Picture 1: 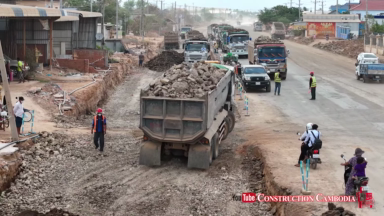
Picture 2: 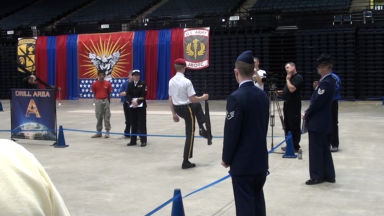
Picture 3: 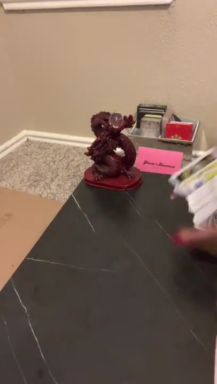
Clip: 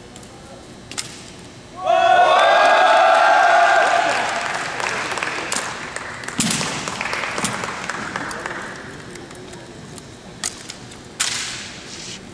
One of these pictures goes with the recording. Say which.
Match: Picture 2